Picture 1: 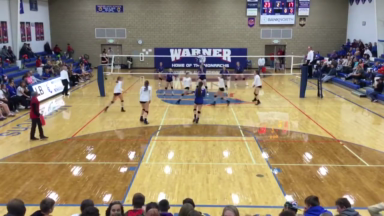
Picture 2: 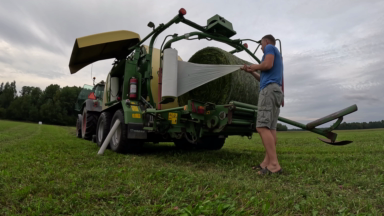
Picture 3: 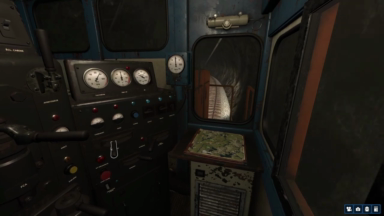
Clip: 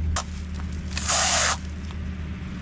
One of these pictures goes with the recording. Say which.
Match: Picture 2